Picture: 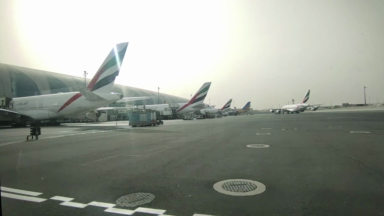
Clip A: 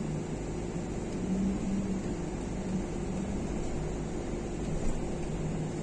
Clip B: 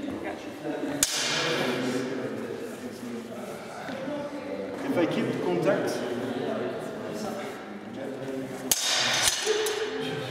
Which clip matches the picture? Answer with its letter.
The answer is A